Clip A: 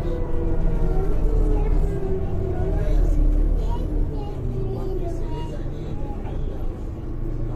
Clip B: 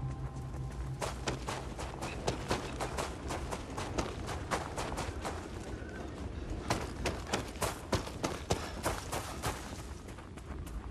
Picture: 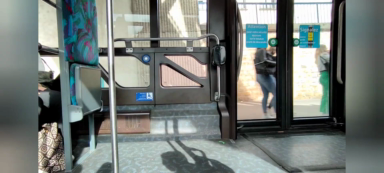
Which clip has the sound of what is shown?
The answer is A